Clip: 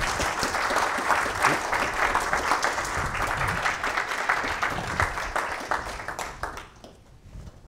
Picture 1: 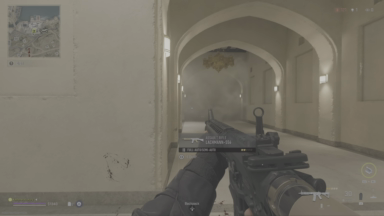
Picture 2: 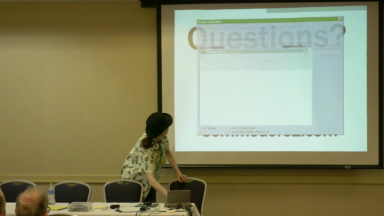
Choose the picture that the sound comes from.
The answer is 2